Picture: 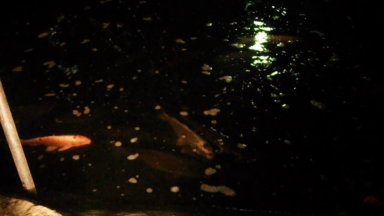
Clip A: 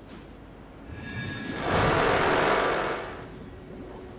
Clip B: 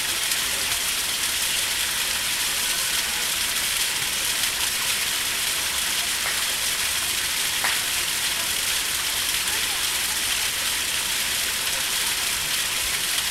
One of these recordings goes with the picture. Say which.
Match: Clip B